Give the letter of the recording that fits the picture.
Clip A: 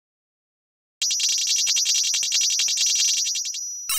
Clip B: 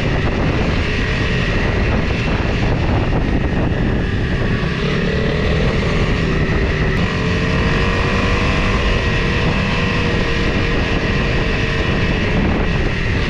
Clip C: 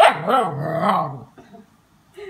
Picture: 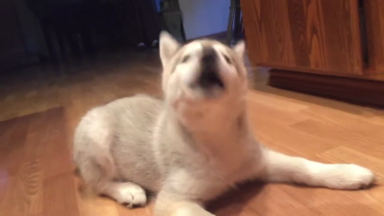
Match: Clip C